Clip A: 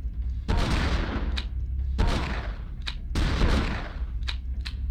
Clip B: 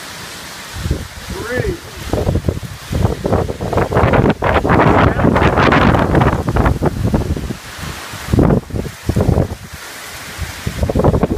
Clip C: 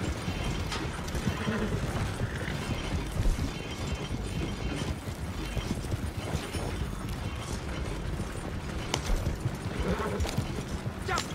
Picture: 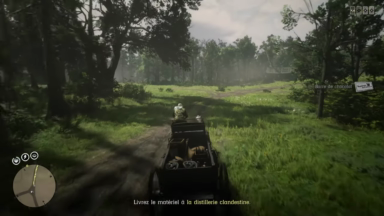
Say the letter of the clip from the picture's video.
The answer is C